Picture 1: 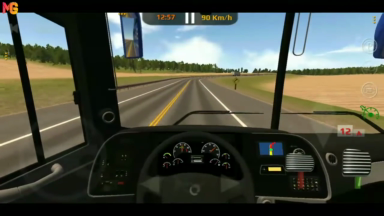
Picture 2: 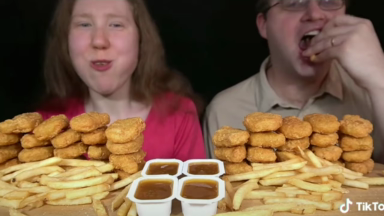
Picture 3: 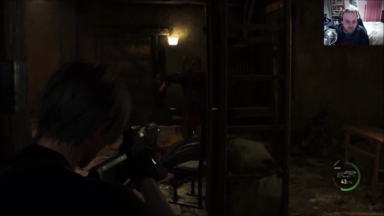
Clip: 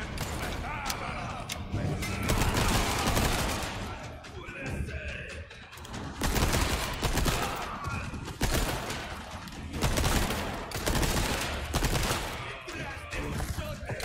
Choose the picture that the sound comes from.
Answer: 3